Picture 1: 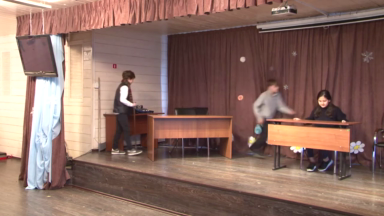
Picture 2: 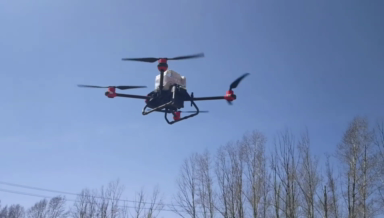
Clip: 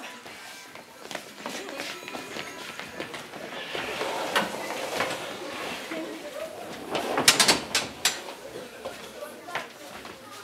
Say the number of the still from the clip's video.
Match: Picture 1